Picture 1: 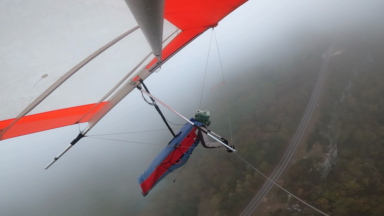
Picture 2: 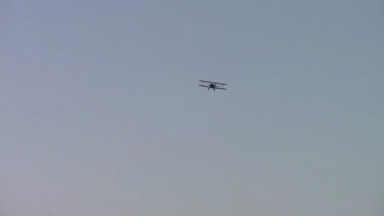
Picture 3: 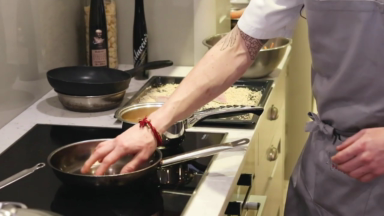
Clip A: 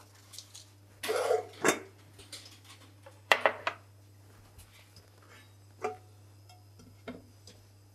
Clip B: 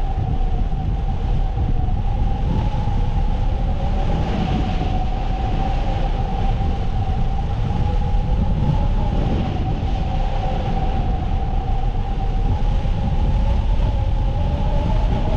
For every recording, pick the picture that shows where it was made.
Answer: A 3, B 1